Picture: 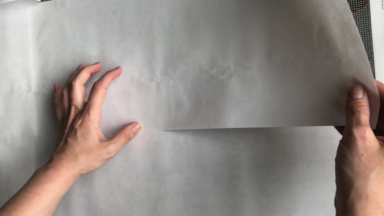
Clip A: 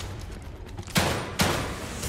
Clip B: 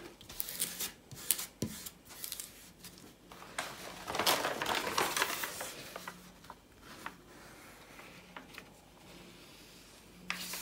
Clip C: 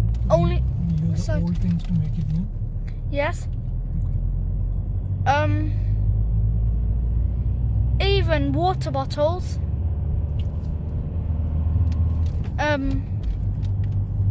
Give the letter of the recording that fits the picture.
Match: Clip B